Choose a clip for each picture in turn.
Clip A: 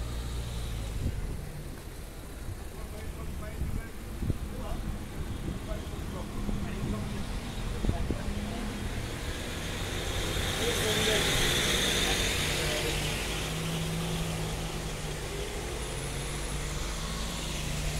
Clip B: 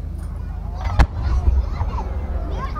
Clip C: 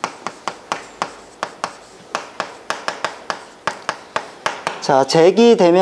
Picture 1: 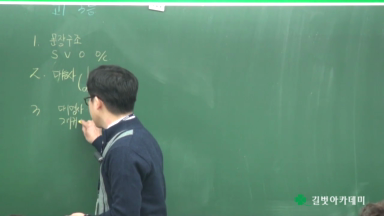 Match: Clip C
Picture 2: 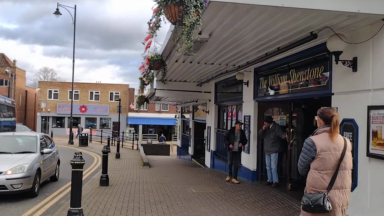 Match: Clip A